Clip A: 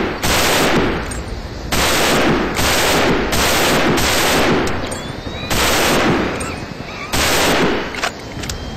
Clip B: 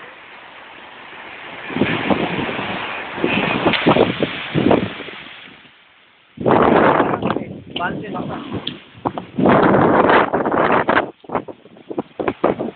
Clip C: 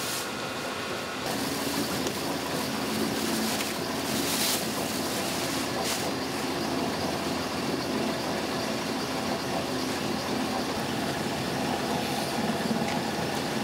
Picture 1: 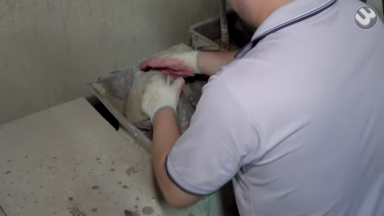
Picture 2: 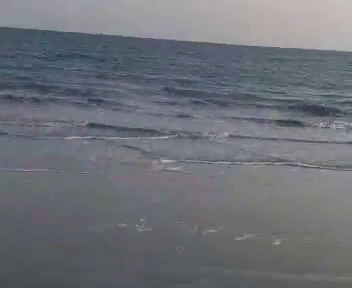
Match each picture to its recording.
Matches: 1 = C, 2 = B